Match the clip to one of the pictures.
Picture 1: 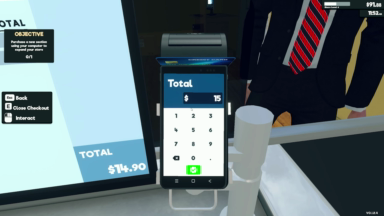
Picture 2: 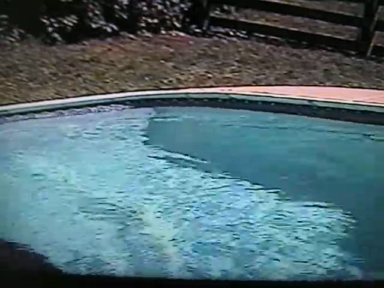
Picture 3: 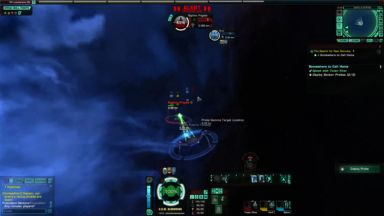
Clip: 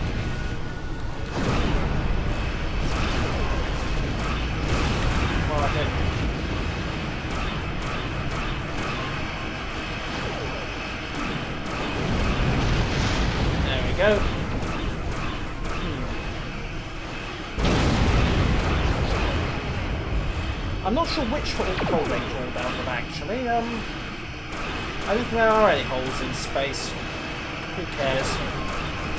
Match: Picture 3